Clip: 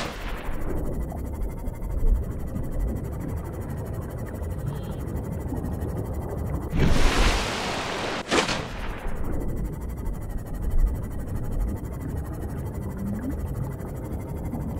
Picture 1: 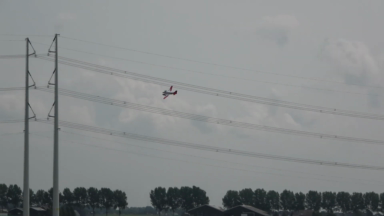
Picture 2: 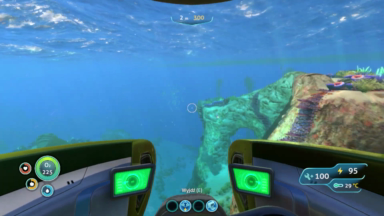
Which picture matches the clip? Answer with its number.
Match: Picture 2